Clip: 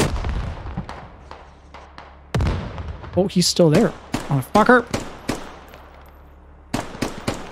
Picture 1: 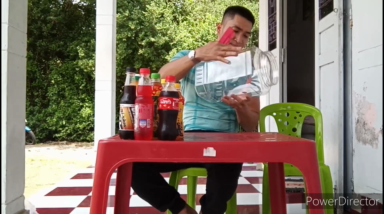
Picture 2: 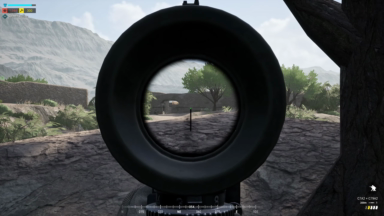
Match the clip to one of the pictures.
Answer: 2